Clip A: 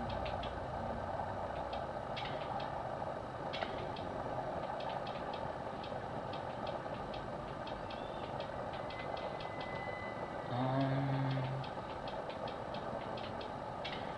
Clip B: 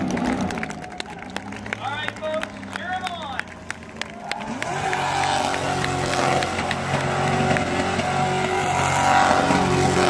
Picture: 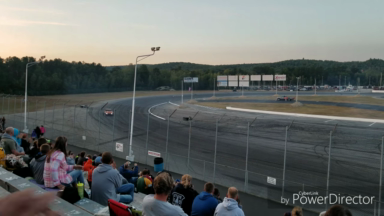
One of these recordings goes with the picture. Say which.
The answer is B